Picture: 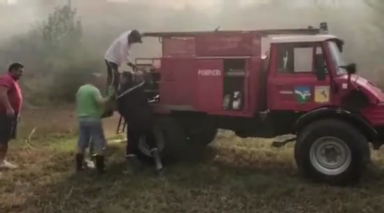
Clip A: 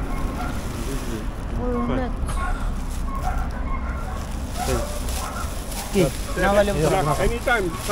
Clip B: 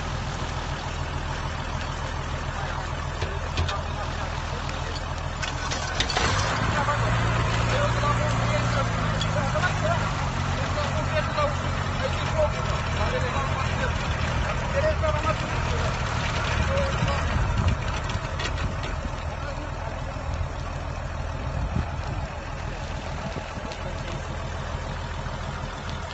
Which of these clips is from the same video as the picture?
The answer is B